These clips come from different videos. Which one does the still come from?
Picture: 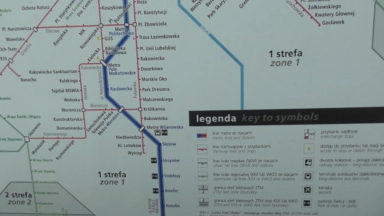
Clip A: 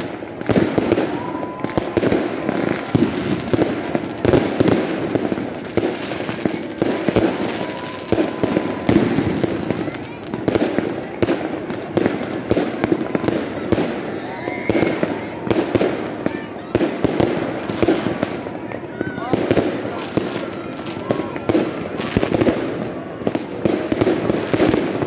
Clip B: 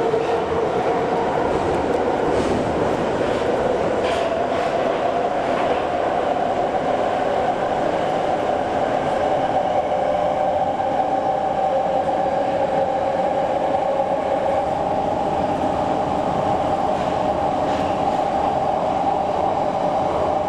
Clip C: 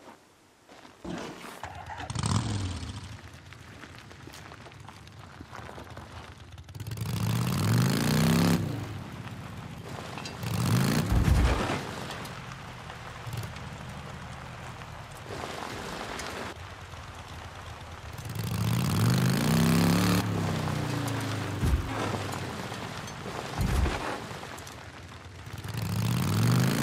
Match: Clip B